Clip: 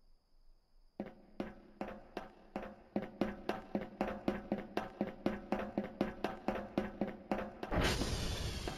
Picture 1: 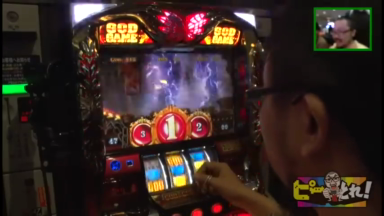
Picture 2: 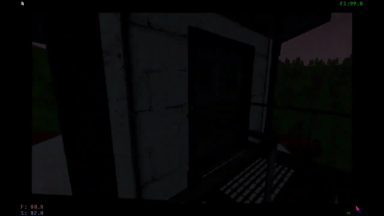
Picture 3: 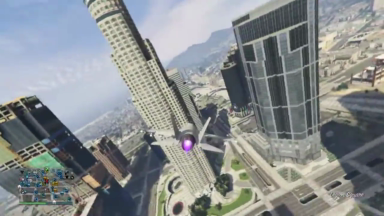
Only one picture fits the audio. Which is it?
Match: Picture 2